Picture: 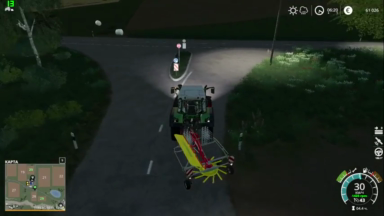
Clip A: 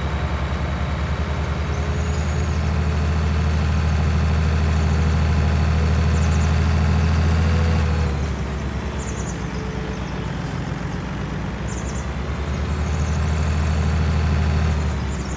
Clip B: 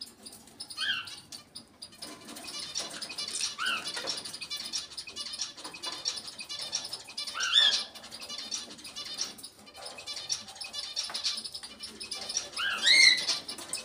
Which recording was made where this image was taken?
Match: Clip A